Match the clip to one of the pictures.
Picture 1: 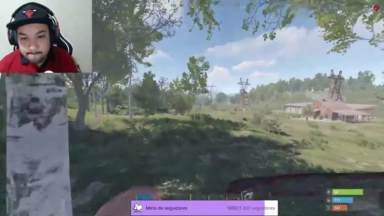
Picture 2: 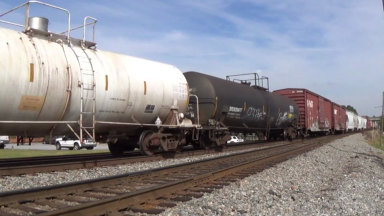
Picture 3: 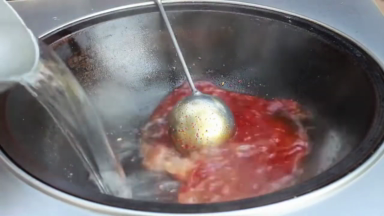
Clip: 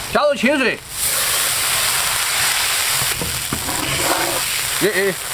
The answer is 3